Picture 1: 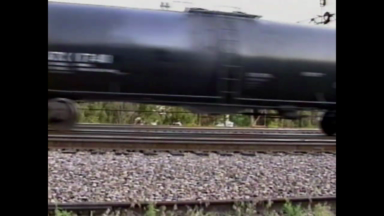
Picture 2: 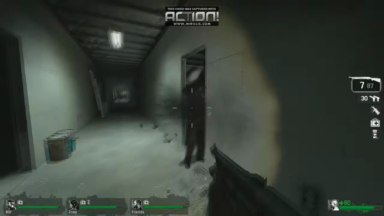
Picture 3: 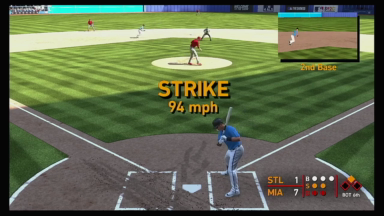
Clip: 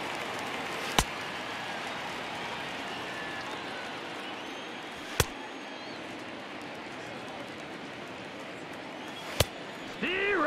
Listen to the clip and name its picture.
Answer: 3